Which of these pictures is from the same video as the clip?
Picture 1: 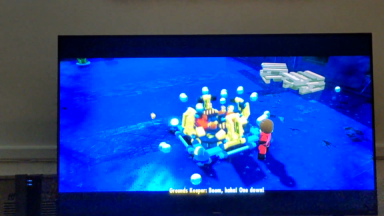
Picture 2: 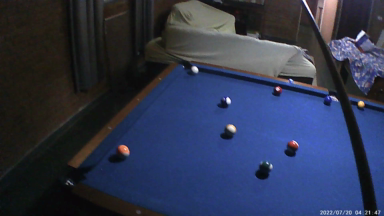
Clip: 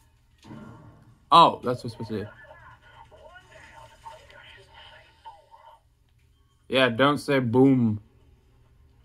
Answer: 1